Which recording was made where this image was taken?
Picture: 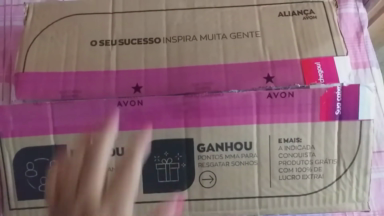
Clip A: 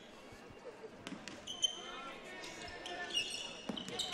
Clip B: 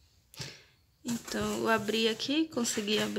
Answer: B